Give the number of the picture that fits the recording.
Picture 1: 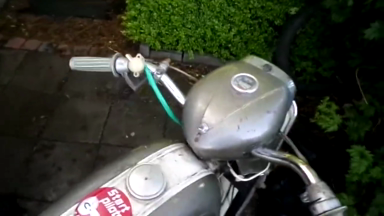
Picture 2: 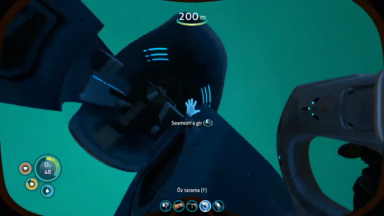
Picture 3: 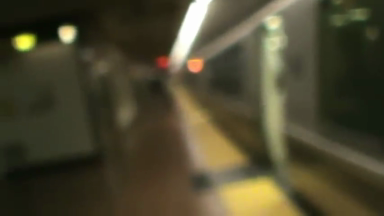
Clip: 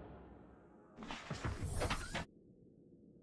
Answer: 2